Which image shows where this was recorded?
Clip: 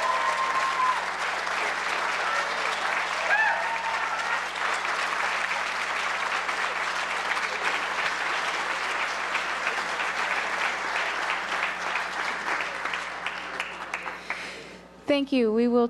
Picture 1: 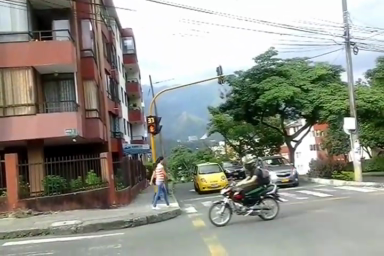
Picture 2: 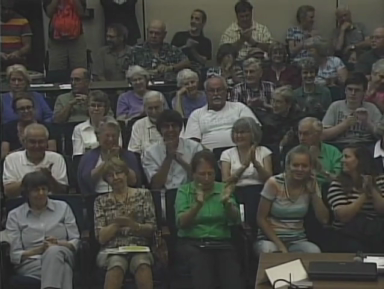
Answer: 2